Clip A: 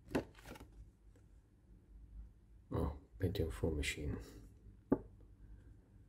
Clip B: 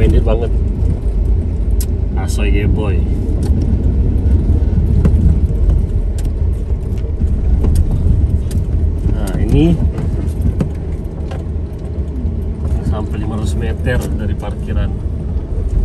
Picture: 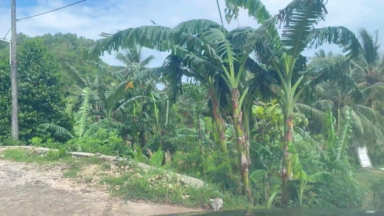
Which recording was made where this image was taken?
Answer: B